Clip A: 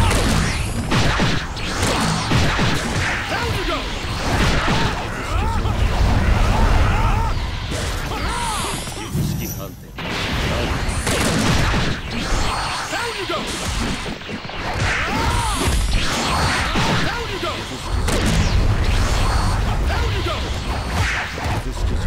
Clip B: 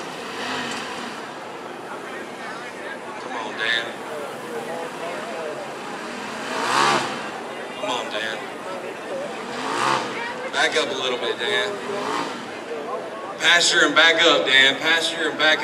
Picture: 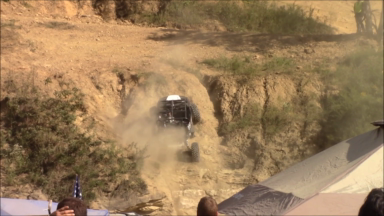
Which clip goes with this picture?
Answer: B